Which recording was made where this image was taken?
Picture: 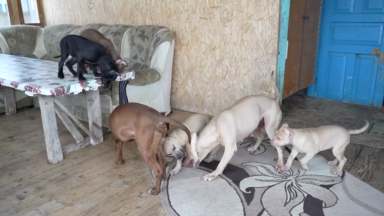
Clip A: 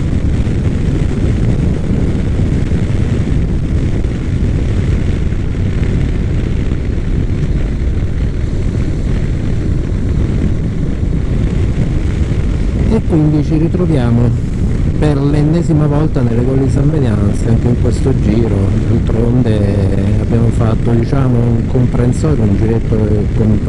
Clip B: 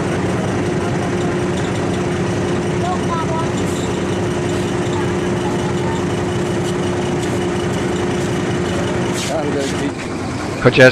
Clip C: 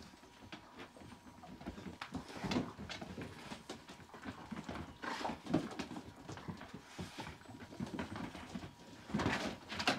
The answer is C